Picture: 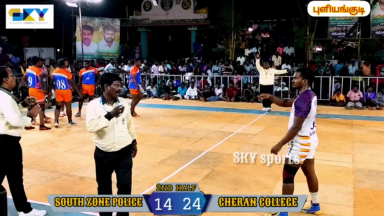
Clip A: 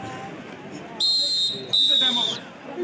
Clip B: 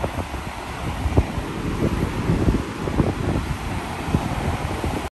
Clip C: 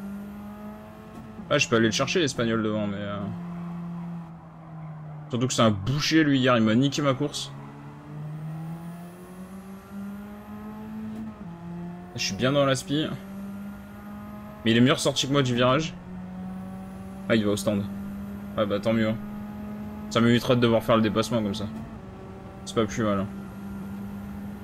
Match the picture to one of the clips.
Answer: A